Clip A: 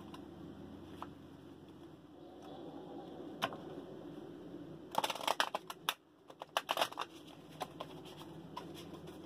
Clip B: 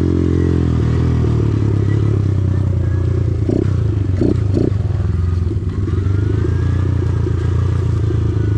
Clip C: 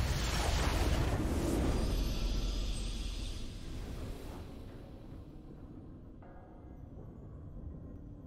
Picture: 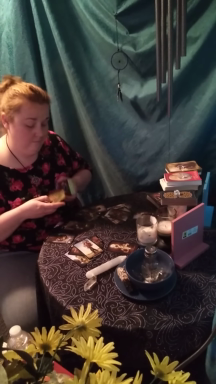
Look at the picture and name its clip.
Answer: A